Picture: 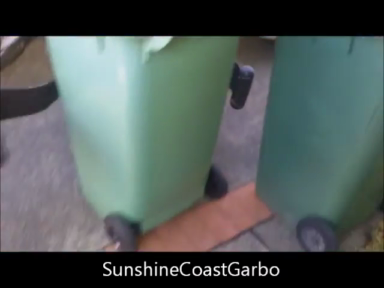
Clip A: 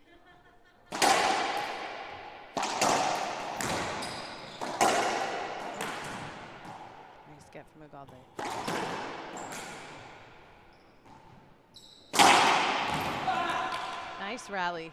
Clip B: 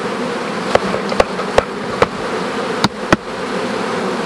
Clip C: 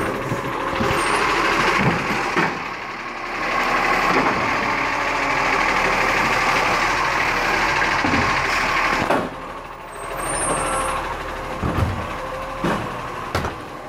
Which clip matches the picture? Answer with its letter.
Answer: C